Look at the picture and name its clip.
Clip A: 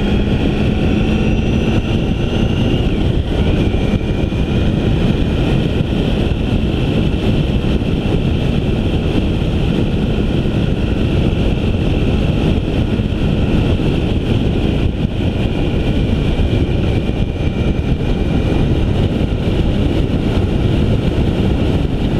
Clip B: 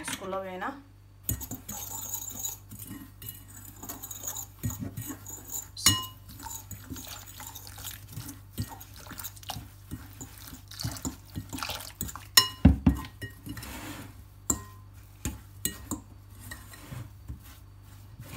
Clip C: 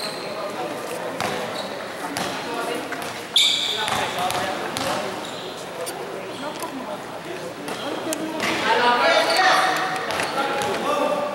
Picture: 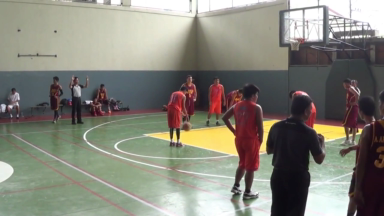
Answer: C